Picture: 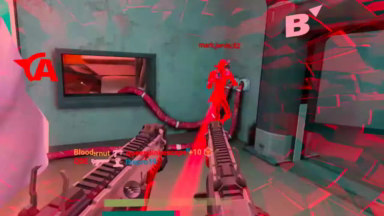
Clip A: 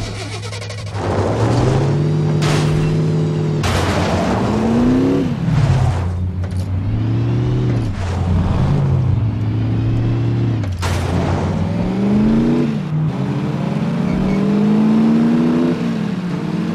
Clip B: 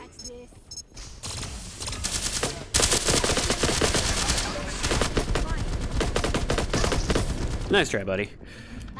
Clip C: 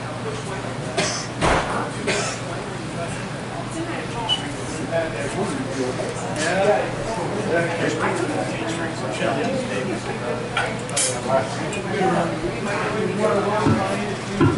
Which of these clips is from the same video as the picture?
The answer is B